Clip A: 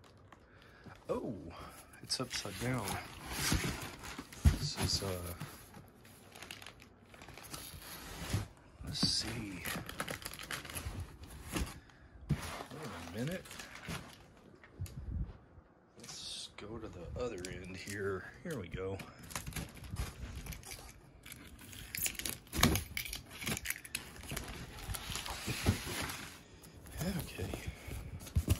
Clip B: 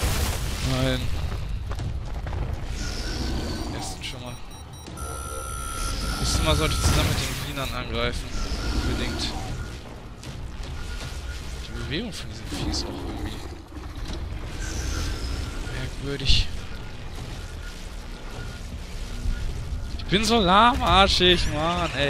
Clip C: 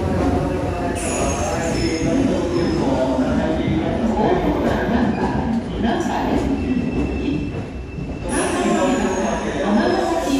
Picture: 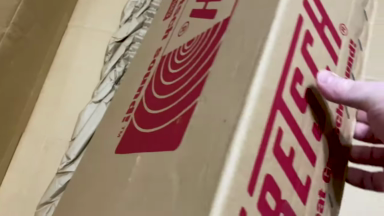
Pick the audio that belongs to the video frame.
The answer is A